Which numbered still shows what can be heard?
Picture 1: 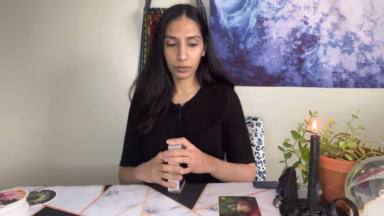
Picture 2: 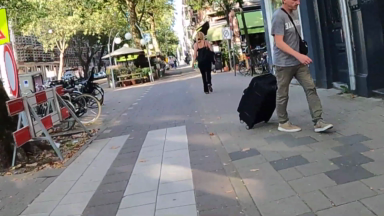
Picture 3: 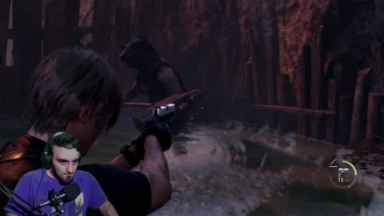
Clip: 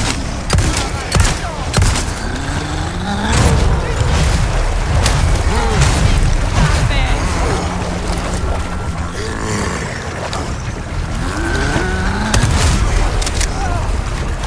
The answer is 3